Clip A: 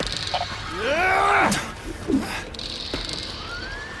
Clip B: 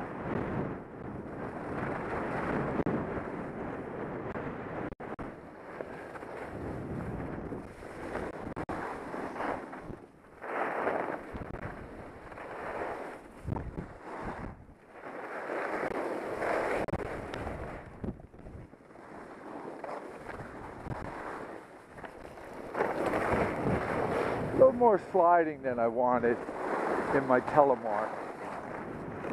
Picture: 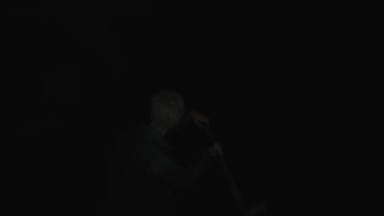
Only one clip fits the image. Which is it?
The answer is A